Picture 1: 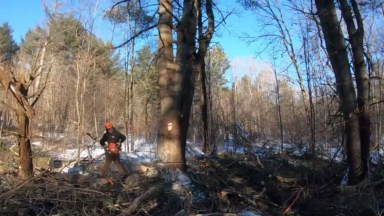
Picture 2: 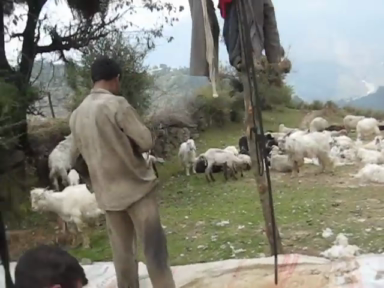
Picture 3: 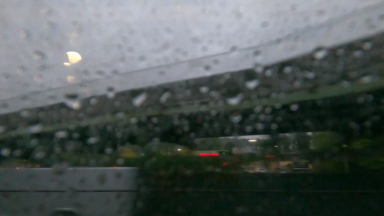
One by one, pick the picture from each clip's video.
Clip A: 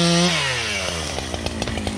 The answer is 1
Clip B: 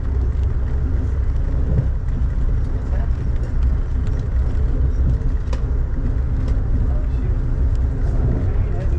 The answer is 3